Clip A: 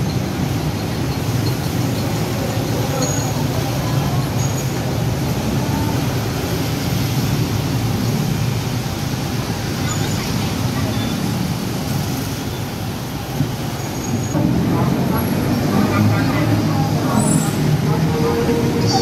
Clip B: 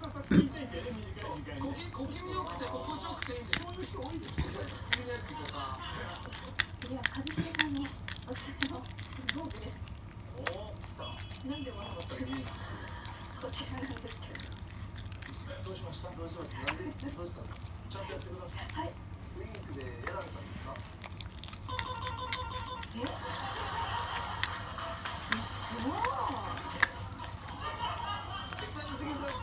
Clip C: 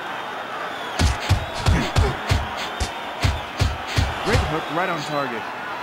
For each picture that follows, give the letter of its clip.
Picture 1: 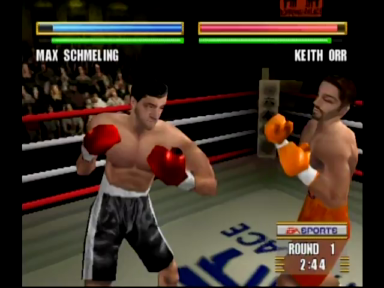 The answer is C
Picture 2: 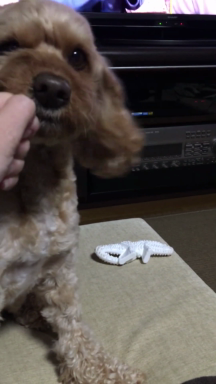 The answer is B